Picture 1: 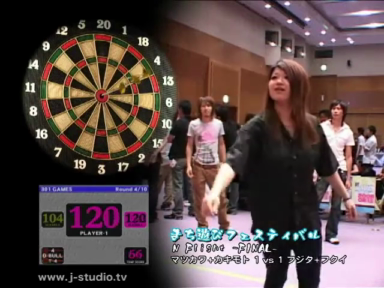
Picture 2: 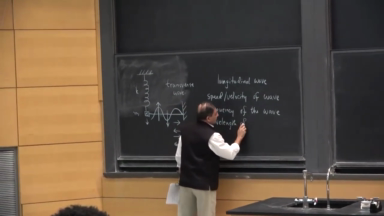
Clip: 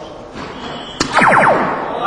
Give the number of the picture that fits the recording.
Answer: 1